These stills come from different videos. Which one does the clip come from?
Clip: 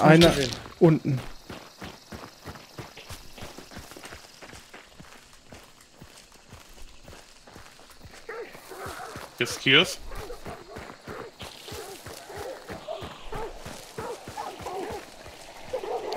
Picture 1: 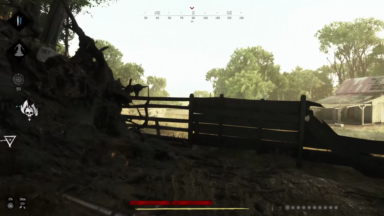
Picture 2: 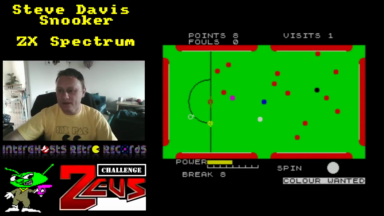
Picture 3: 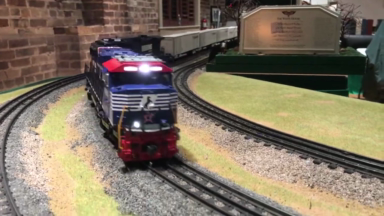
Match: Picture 1